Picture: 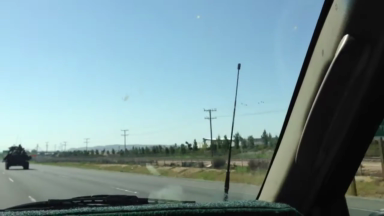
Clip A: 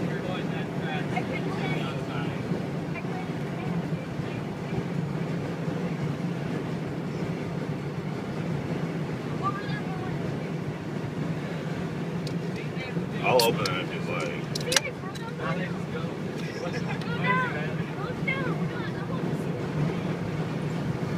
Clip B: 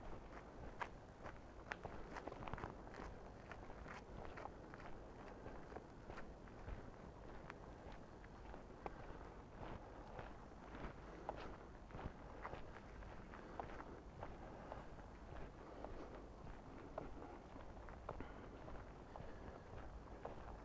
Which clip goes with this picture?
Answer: A